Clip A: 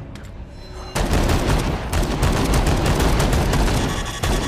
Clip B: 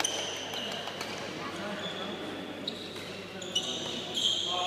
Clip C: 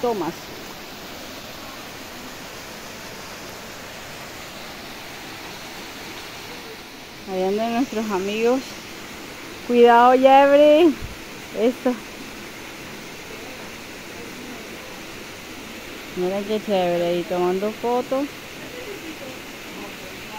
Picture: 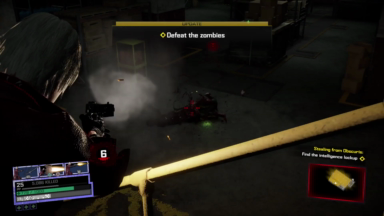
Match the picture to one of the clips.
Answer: A